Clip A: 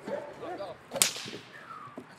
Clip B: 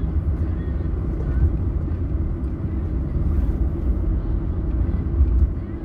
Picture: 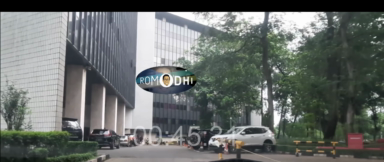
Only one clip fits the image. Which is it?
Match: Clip B